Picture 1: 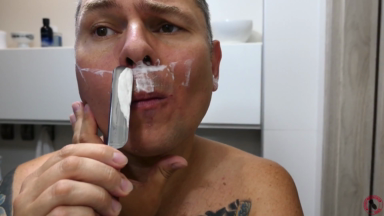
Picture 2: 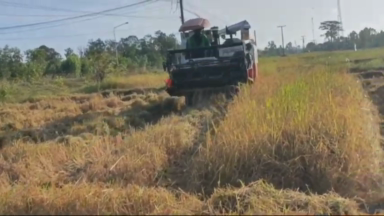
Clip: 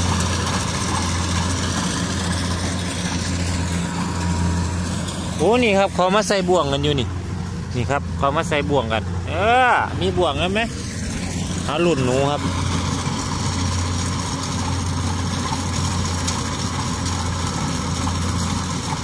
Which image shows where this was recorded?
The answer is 2